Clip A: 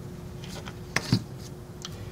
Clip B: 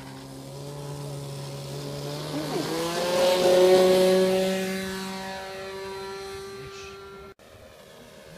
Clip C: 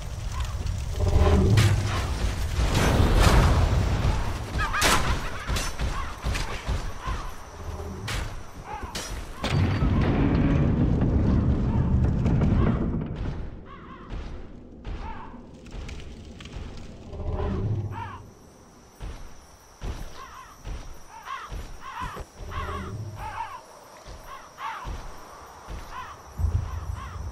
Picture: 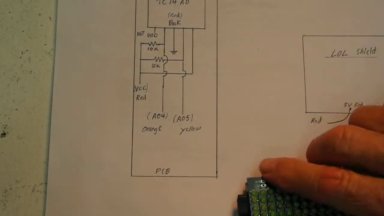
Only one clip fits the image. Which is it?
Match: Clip A